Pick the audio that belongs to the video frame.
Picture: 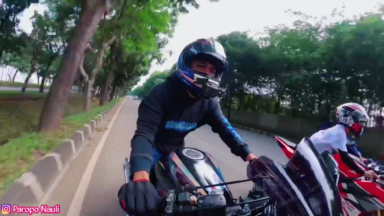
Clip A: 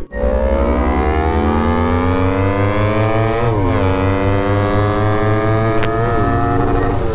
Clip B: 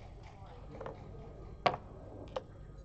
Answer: A